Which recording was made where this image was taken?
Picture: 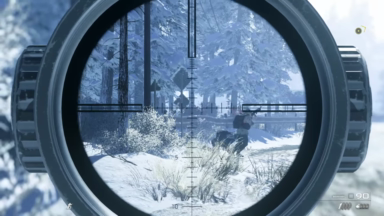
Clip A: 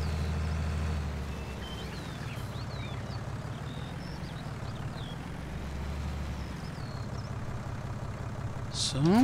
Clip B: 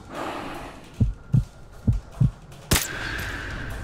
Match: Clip B